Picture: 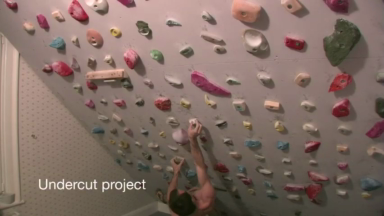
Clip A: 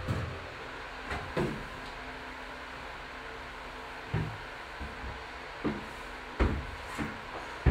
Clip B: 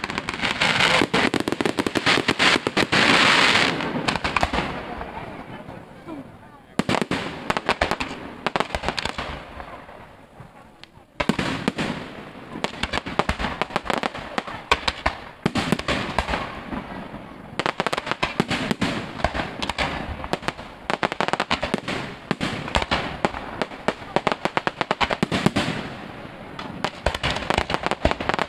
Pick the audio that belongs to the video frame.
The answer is A